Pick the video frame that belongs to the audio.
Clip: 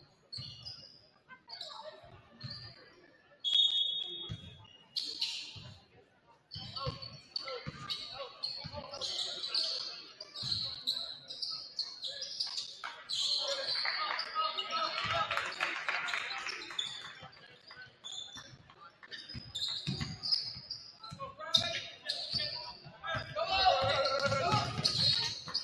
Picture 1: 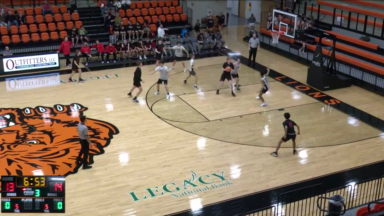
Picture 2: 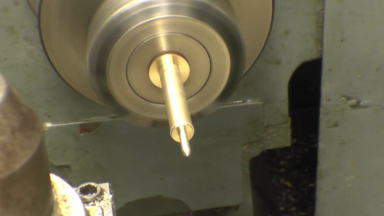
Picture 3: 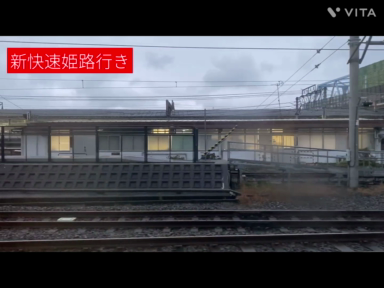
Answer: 1